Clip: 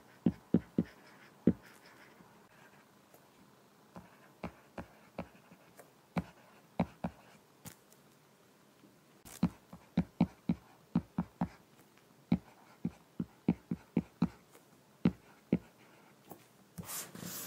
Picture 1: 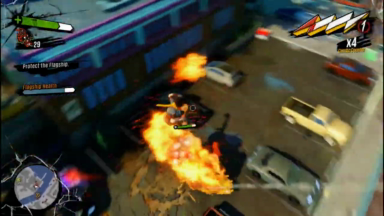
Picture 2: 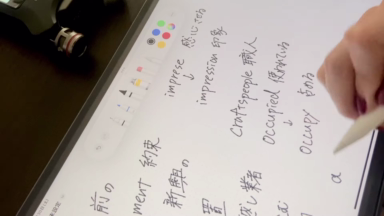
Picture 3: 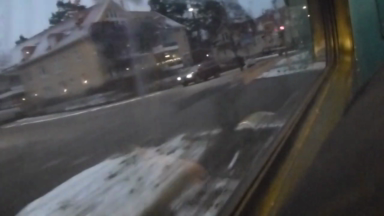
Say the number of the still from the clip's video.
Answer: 2